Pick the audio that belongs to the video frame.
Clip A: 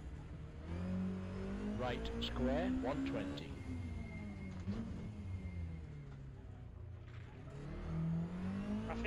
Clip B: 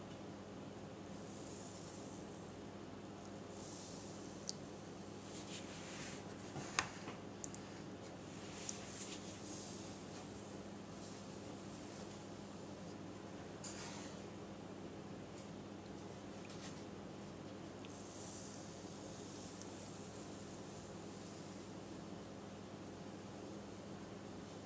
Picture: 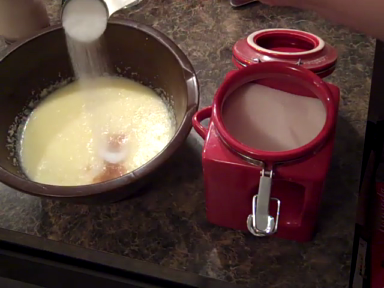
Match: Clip B